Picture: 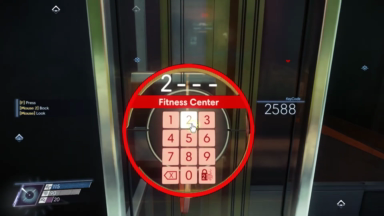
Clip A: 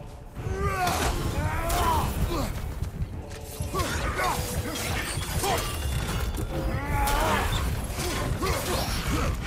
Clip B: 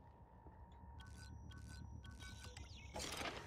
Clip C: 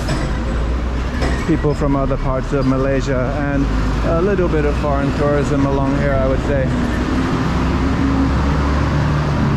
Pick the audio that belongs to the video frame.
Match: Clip B